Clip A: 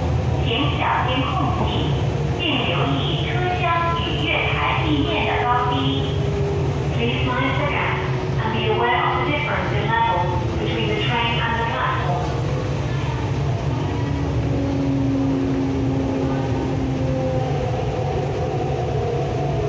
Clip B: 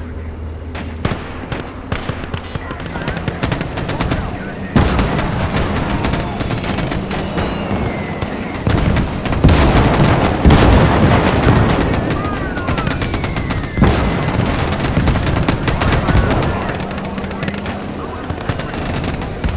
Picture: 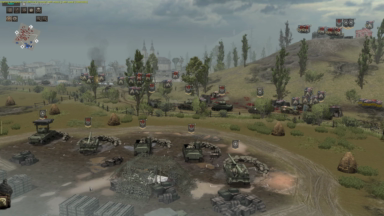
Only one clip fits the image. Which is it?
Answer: B